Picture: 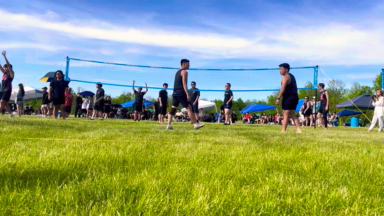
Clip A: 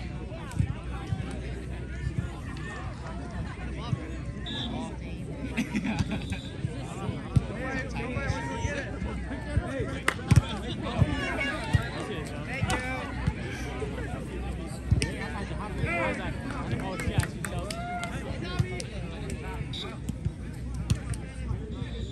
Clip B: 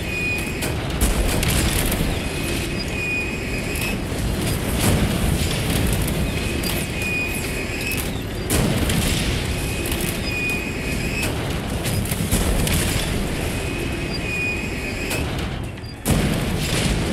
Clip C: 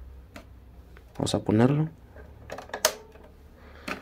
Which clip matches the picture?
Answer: A